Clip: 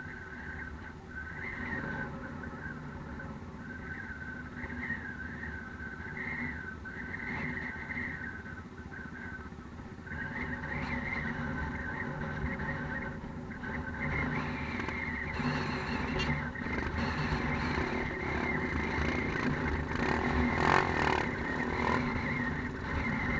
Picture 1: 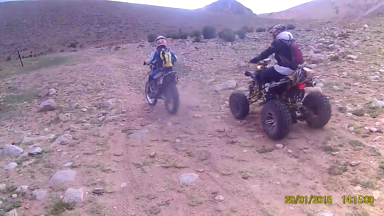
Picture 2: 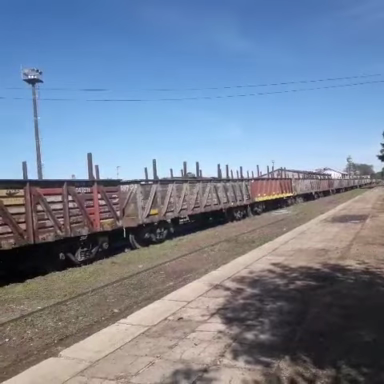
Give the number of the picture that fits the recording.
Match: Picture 1